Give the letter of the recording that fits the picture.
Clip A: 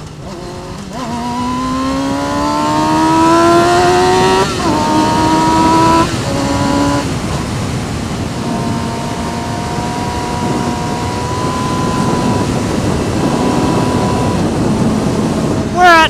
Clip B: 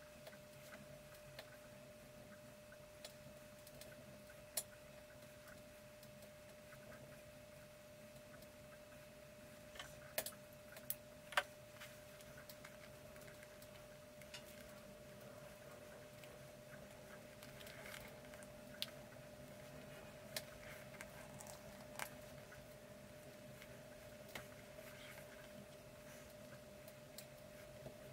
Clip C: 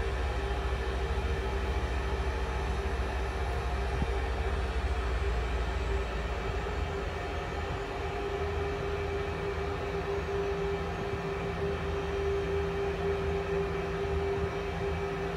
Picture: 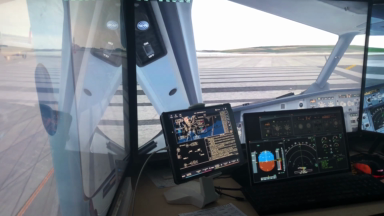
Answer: C